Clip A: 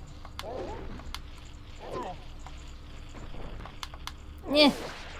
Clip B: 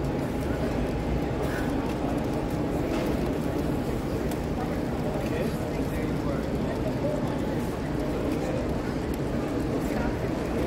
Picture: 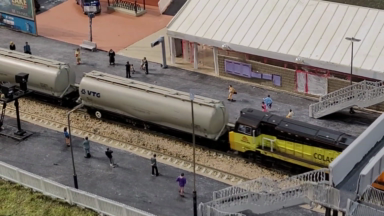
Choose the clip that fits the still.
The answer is B